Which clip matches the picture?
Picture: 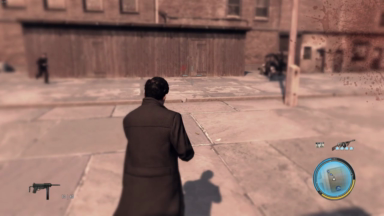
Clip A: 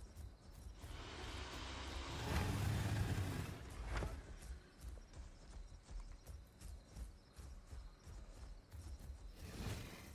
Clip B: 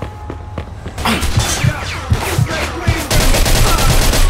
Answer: B